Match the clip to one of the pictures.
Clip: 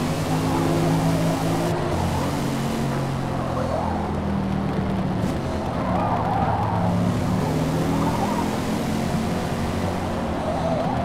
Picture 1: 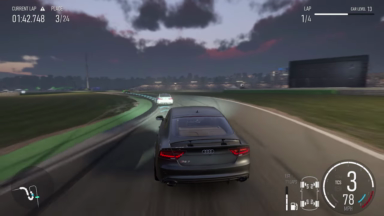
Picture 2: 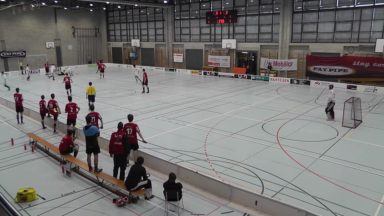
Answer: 1